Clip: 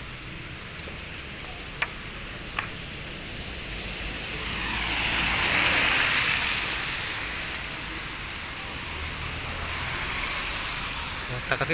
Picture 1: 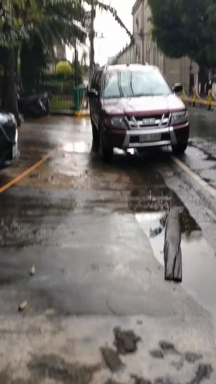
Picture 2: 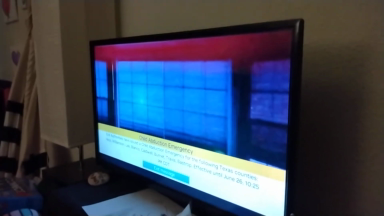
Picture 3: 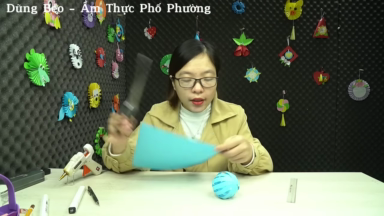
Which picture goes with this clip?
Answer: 1